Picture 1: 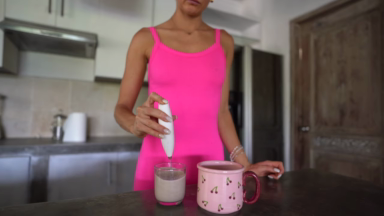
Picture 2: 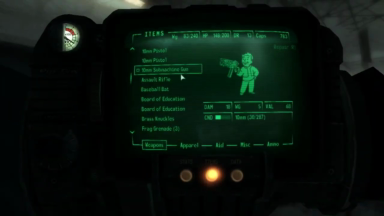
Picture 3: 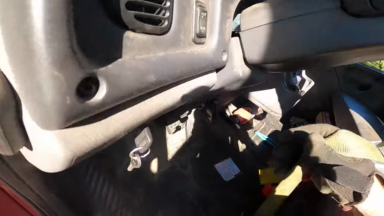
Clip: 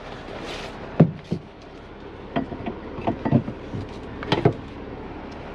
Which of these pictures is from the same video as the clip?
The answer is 3